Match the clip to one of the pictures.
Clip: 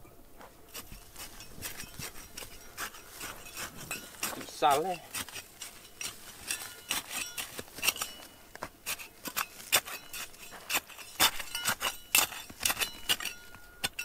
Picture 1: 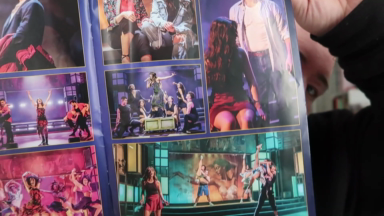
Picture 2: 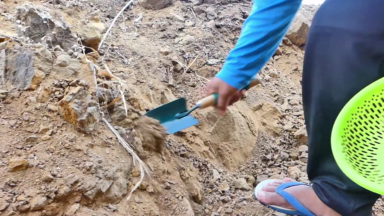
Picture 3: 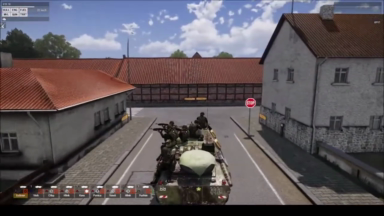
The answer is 2